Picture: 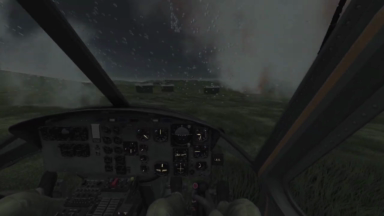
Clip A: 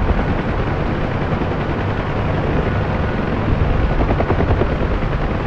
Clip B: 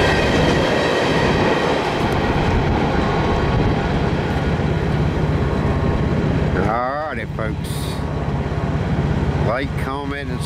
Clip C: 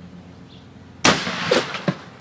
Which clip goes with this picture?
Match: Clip A